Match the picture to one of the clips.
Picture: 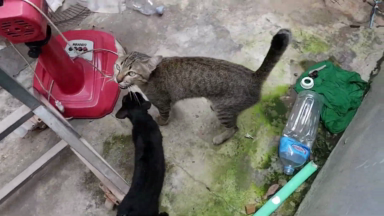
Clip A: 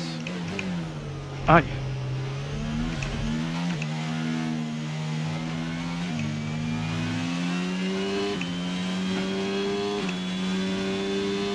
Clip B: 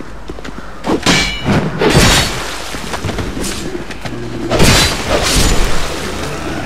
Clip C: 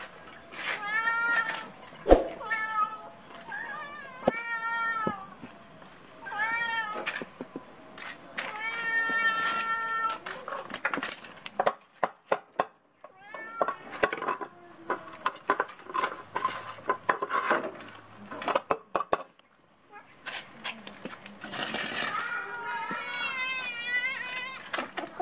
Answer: C